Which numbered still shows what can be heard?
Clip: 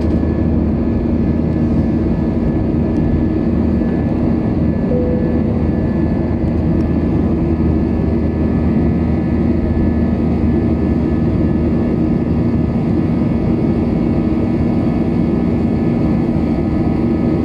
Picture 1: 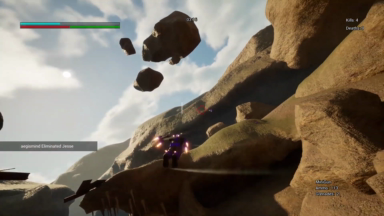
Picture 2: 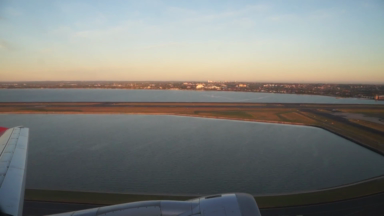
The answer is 2